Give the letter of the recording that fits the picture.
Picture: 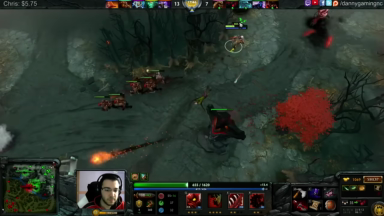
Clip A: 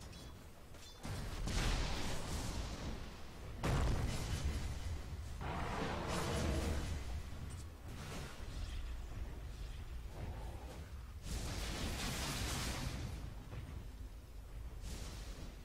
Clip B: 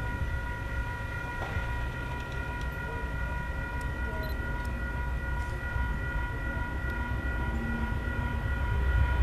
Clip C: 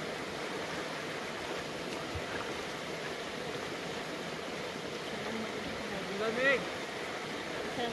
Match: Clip A